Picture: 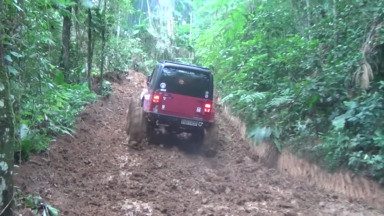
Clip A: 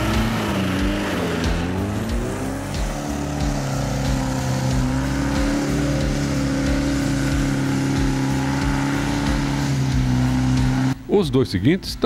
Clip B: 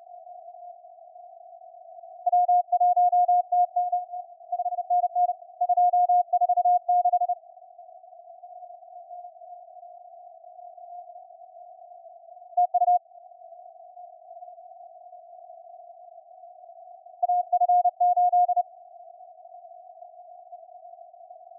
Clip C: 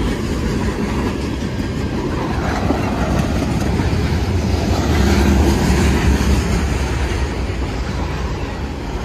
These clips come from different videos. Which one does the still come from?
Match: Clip A